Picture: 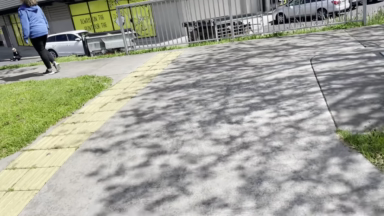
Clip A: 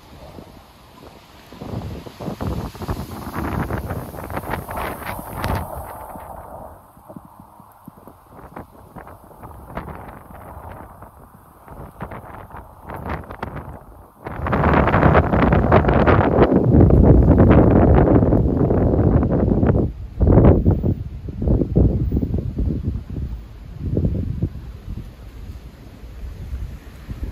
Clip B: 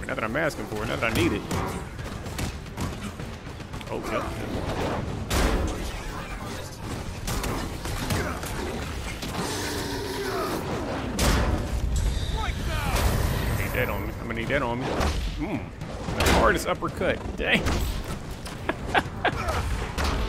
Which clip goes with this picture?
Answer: A